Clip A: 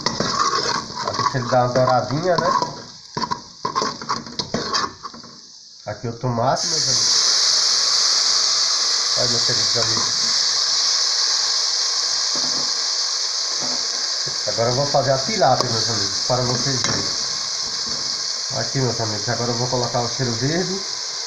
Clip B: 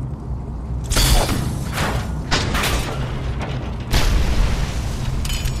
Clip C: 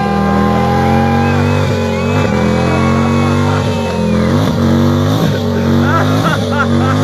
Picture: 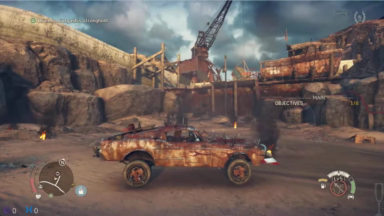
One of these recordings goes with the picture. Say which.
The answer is B